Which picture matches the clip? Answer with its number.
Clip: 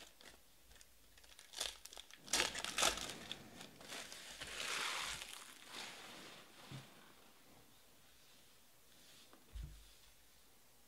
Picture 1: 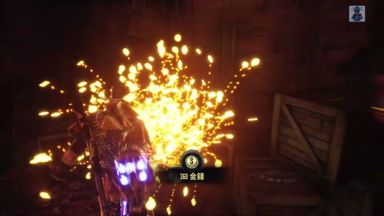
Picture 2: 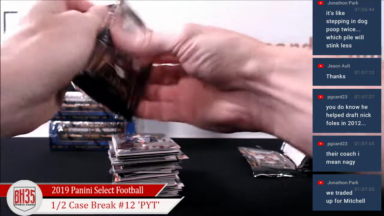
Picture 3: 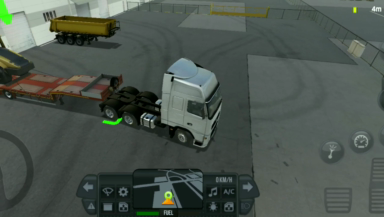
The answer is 2